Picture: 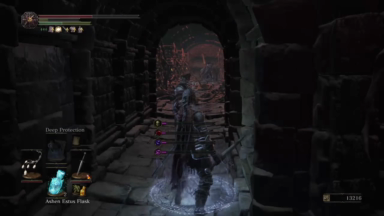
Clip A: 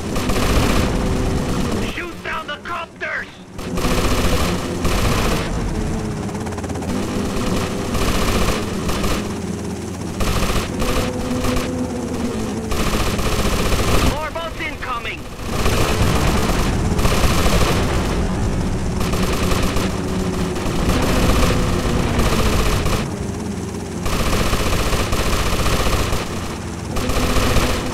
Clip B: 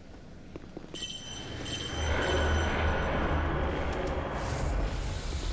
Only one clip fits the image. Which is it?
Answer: B